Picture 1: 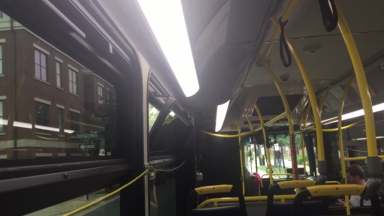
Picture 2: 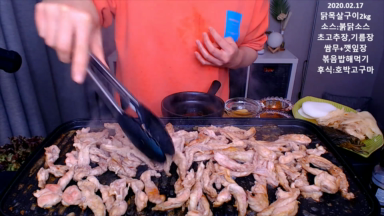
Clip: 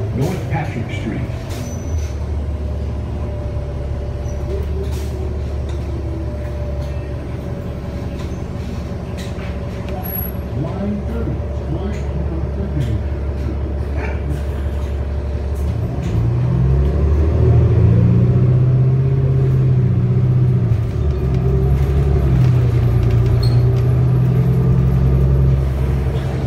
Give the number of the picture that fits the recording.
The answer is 1